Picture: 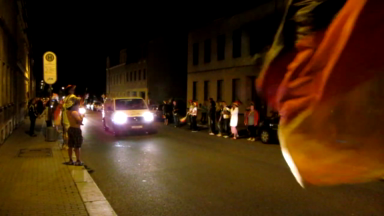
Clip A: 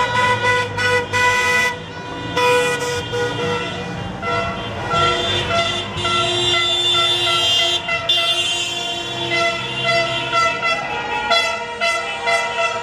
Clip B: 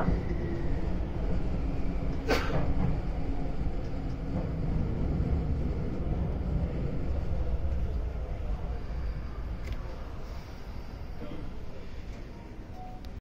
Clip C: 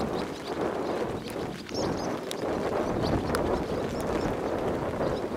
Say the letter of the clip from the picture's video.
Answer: A